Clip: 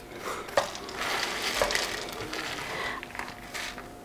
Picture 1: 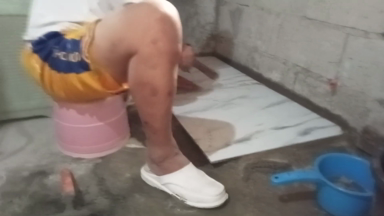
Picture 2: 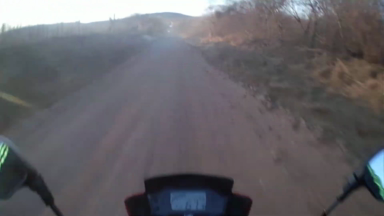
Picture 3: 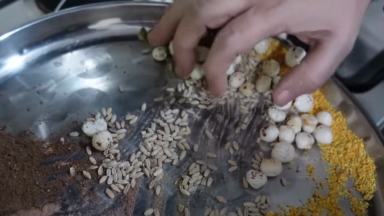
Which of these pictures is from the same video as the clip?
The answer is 3